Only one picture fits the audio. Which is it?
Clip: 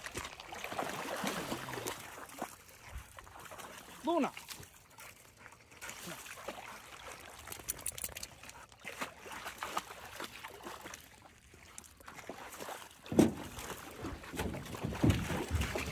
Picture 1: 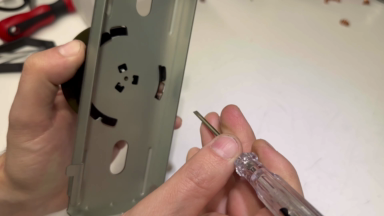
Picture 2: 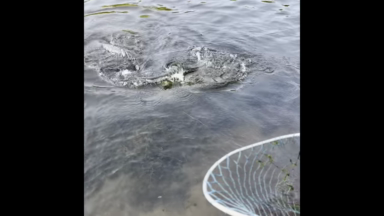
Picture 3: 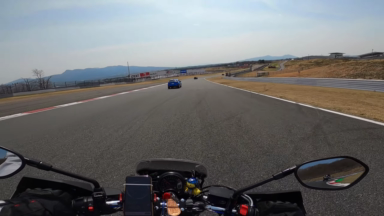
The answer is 2